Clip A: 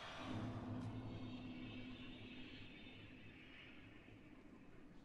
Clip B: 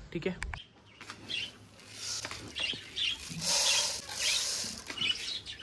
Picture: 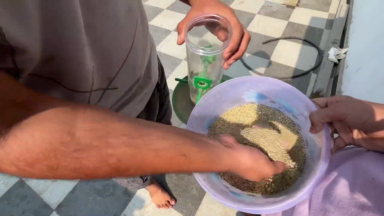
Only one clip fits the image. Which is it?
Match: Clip B